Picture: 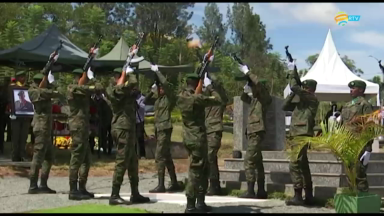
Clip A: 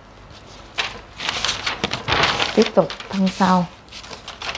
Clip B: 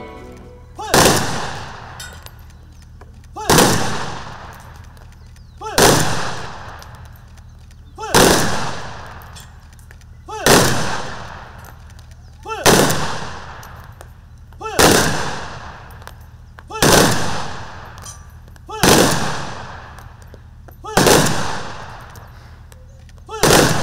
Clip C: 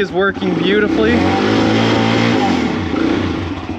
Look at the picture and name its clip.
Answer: B